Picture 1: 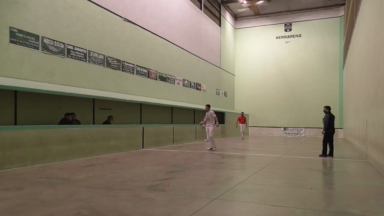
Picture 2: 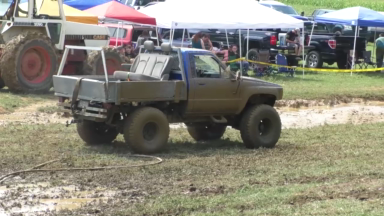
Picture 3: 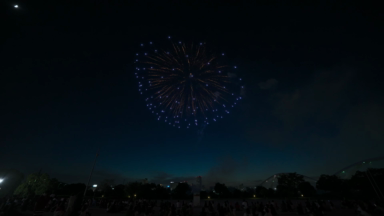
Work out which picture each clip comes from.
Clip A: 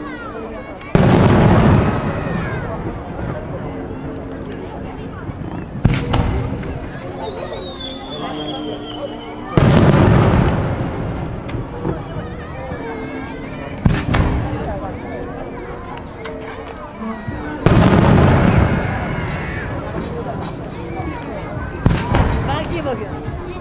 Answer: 3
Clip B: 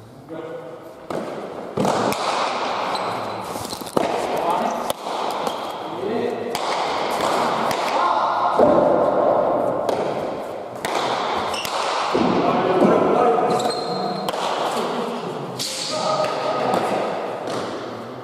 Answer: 1